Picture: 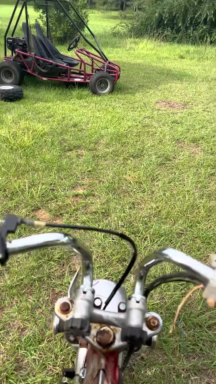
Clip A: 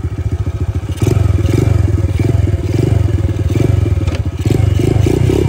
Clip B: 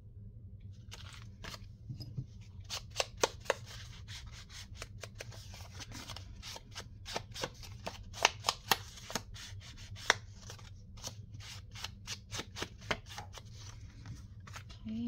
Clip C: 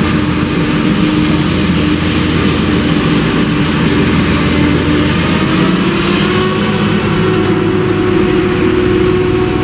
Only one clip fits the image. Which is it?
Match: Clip A